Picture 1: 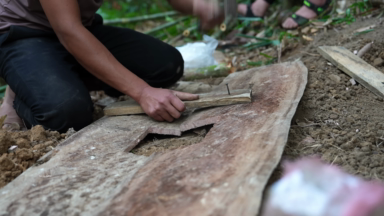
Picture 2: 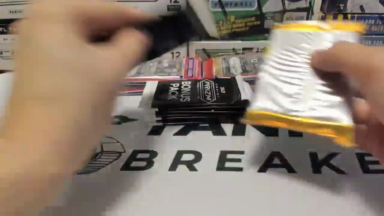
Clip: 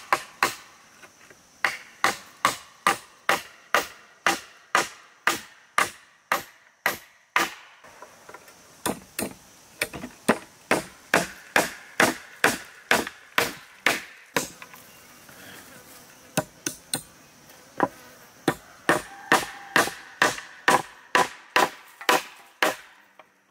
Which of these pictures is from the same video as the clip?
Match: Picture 1